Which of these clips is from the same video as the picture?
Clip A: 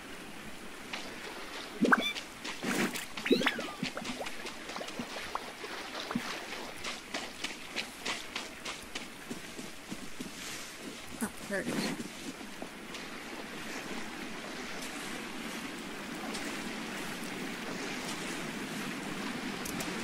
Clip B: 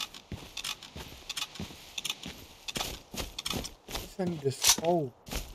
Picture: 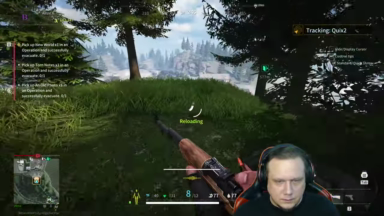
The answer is B